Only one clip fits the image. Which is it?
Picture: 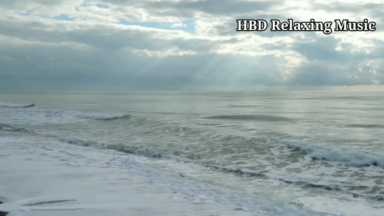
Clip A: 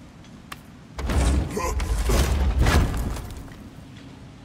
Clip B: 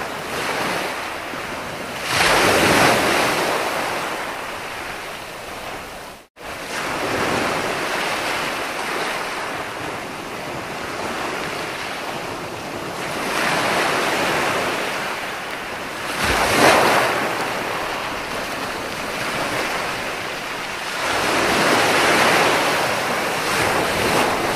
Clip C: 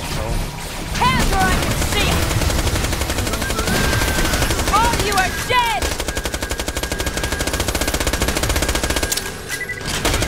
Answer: B